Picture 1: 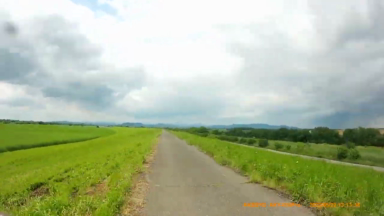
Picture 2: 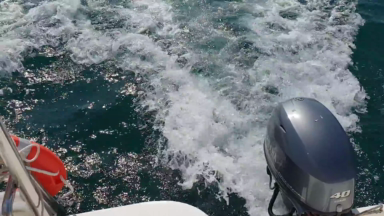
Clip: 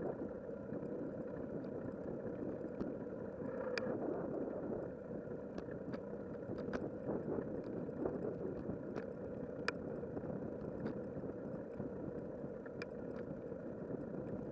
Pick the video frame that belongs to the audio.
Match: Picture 1